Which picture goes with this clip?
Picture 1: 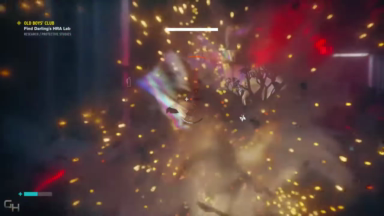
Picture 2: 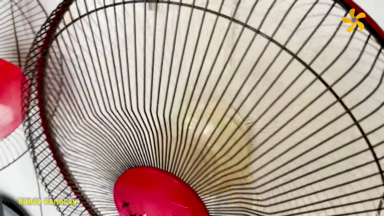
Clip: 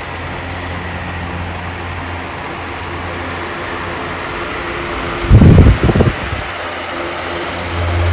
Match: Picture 2